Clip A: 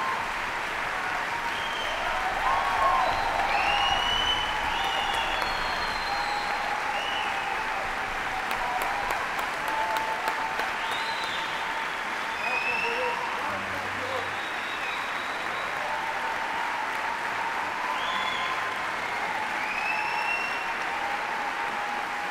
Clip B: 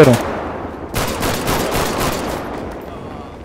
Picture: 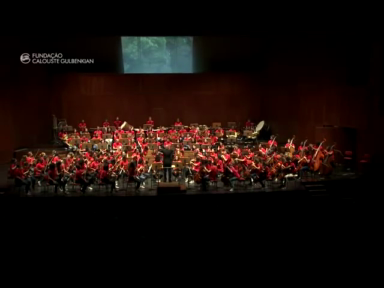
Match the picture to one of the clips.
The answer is A